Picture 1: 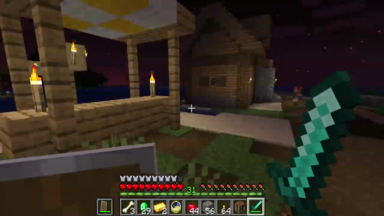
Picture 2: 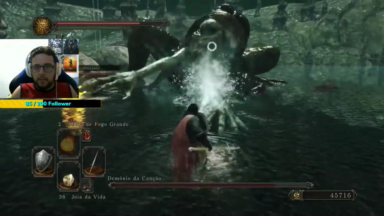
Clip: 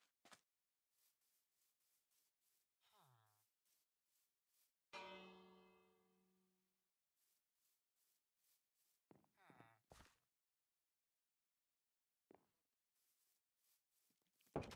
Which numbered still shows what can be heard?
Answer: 1